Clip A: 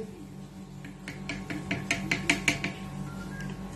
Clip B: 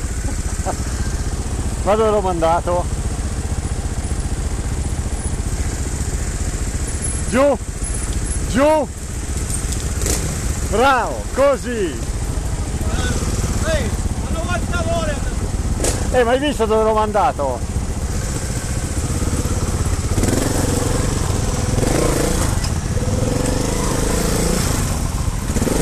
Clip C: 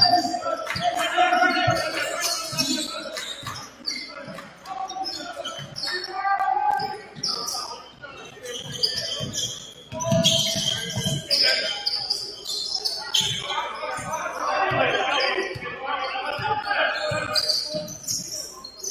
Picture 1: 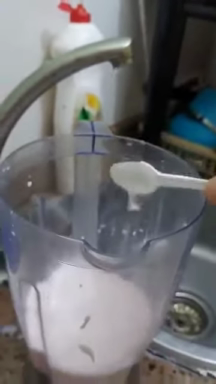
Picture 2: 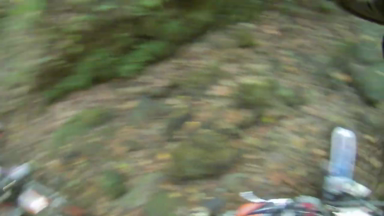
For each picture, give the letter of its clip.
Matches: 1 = A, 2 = B